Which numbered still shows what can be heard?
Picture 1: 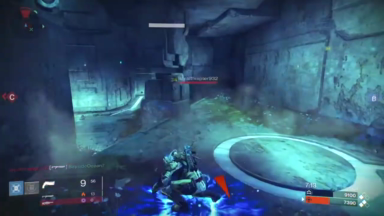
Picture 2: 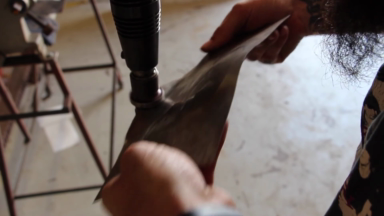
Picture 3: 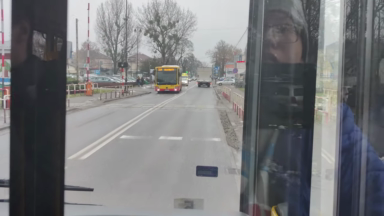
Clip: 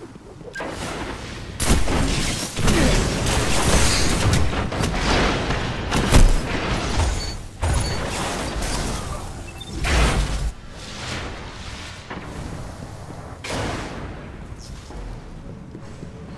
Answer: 1